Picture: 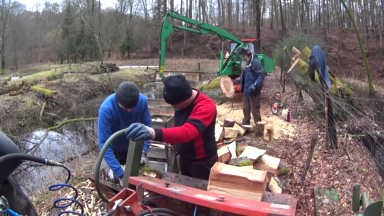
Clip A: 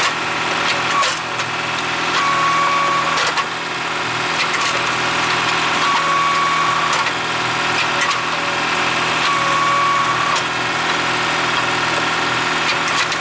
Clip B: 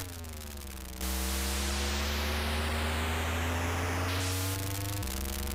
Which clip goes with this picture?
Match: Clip A